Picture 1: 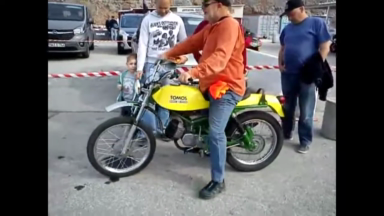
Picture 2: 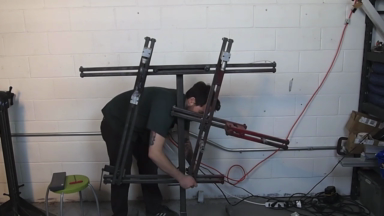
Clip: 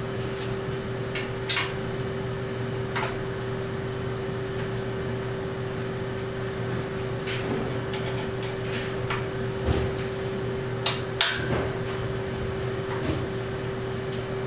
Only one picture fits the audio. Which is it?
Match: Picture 2